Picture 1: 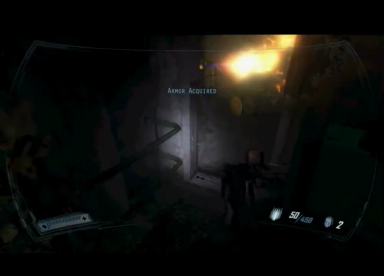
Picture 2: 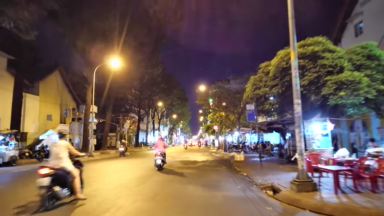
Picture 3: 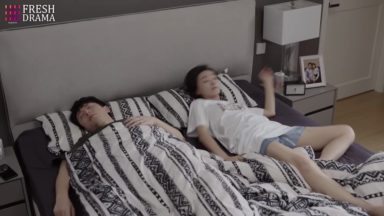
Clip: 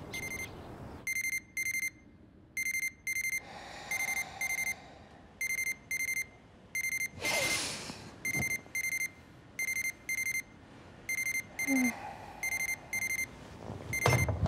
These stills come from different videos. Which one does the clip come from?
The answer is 3